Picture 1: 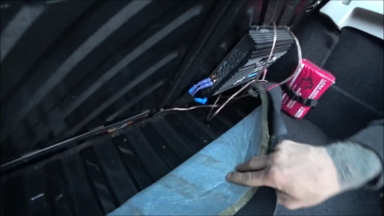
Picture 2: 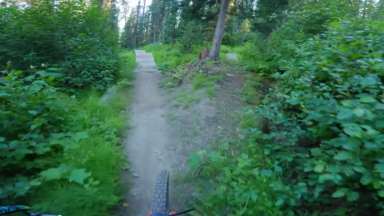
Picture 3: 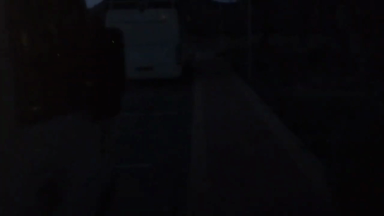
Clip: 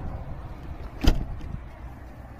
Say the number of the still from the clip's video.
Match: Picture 3